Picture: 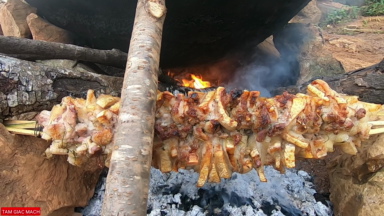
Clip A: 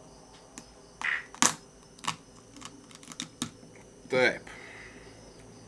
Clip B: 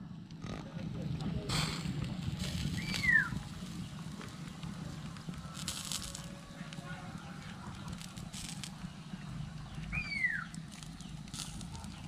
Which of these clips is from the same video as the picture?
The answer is B